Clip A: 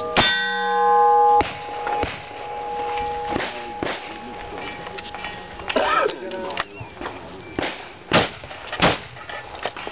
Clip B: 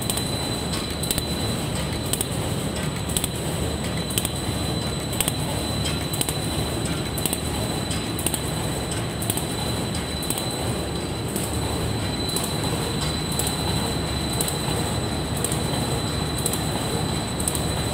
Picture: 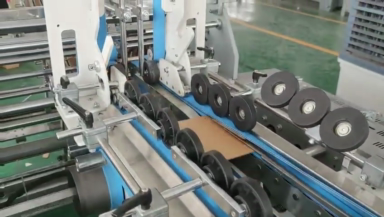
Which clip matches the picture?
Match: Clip B